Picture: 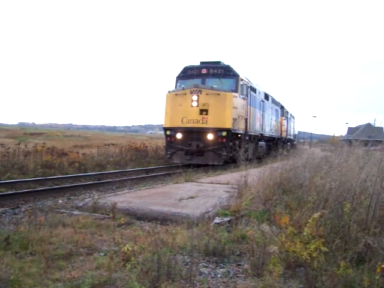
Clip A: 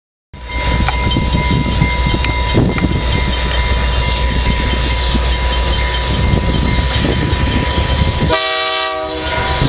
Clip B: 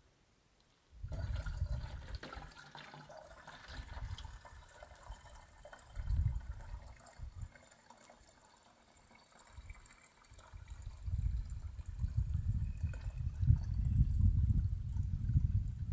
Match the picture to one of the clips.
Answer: A